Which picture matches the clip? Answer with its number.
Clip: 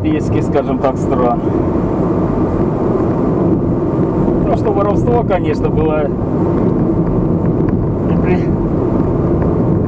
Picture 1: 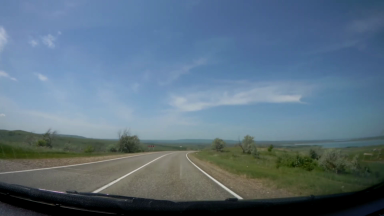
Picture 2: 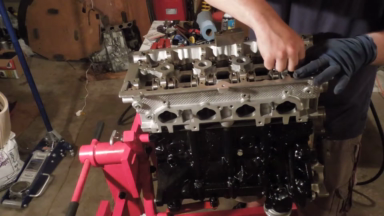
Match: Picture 1